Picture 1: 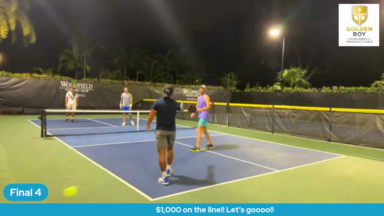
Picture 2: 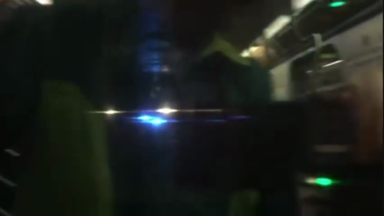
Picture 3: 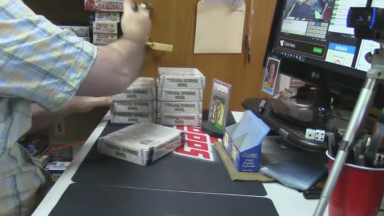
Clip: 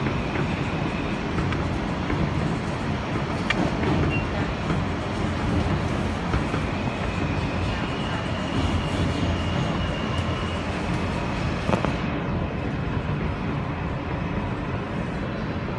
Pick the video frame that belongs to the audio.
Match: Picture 2